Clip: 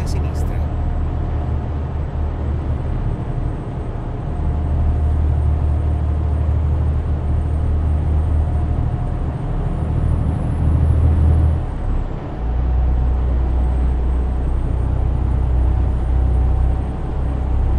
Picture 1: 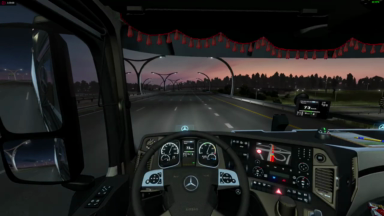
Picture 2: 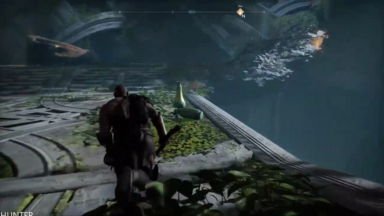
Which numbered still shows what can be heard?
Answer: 1